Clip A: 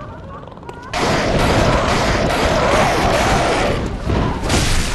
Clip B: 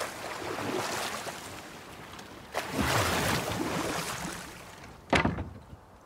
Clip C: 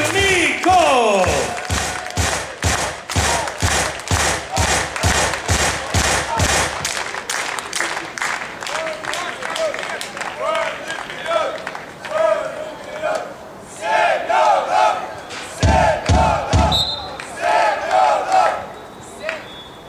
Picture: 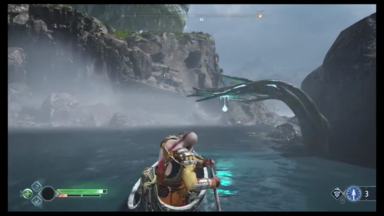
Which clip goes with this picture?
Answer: B